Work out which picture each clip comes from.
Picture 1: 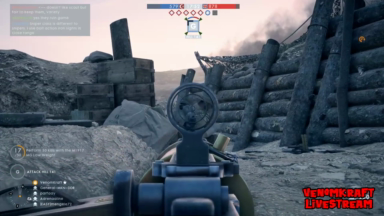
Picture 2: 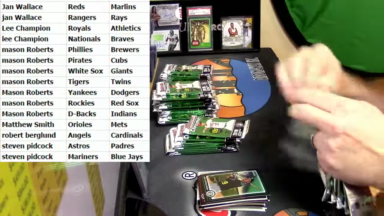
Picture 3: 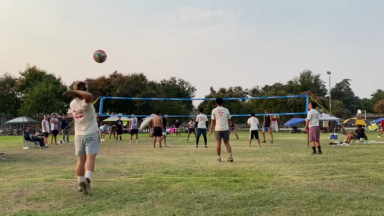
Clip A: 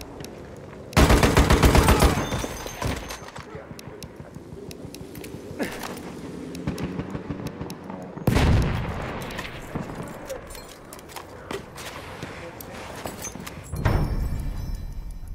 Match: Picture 1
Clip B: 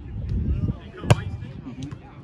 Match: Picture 3